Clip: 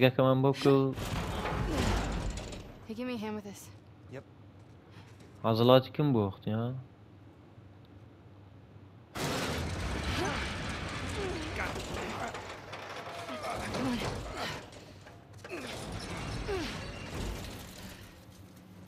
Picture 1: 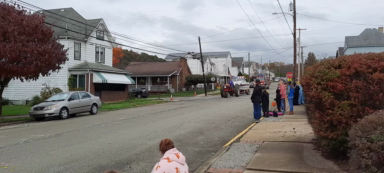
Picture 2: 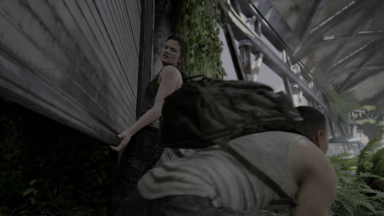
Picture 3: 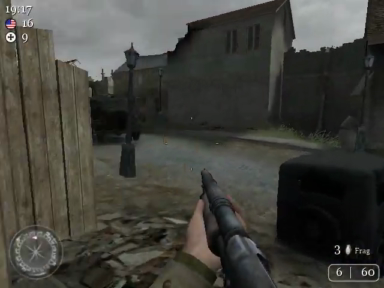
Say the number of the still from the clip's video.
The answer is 2